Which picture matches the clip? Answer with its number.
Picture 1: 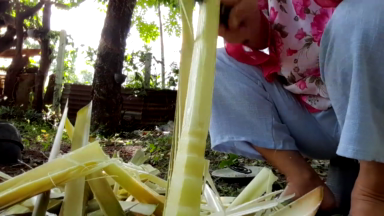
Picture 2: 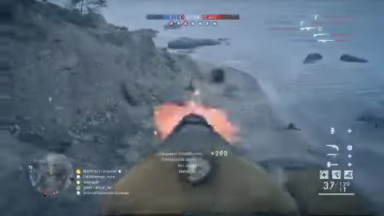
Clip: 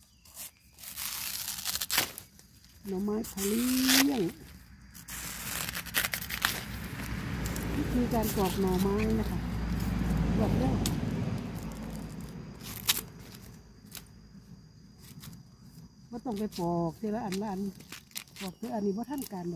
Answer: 1